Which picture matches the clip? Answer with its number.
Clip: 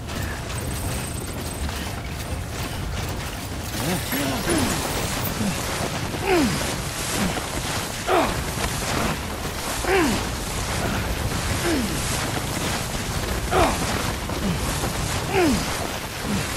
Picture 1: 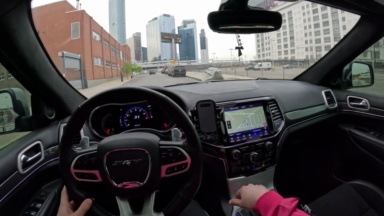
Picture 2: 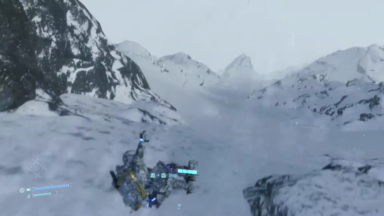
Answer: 2